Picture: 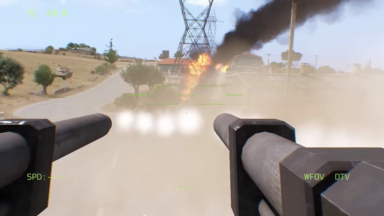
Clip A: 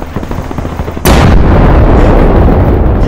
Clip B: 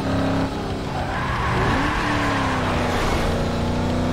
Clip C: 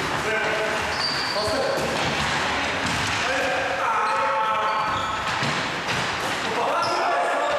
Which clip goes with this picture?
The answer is A